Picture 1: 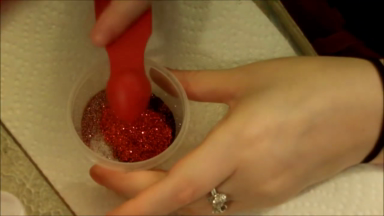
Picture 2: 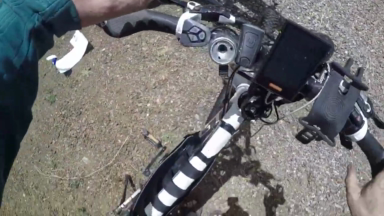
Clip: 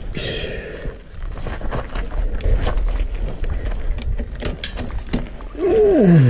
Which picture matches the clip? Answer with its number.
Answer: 2